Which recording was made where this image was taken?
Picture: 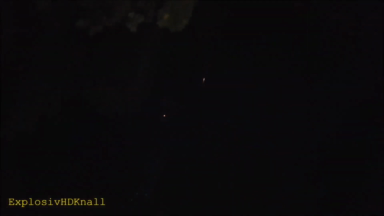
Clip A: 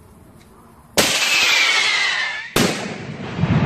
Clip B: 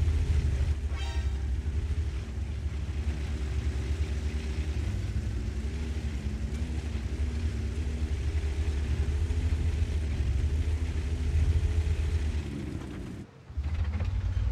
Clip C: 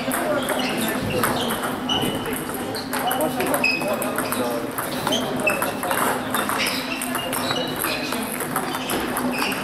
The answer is A